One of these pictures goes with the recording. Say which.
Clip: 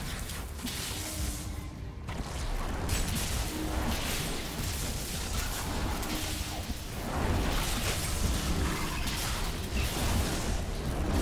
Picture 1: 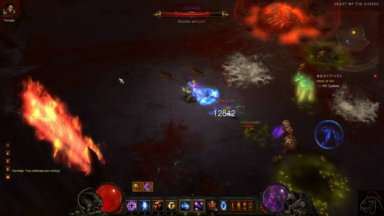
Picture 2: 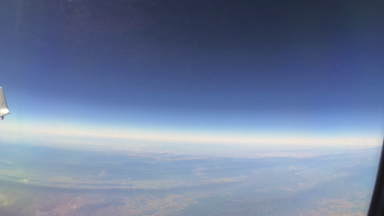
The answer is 1